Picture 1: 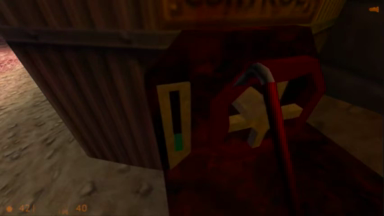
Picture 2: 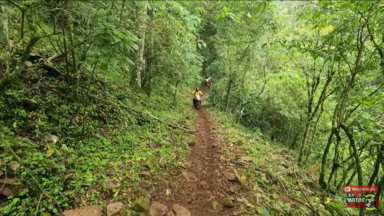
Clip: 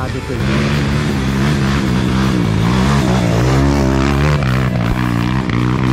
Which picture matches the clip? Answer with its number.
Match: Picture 2